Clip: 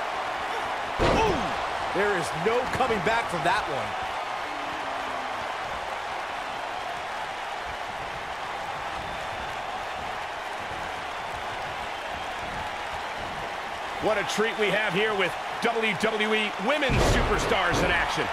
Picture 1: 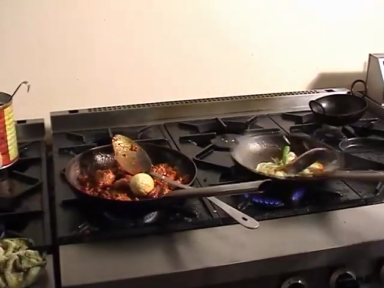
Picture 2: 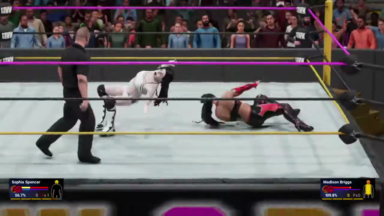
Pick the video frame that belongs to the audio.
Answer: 2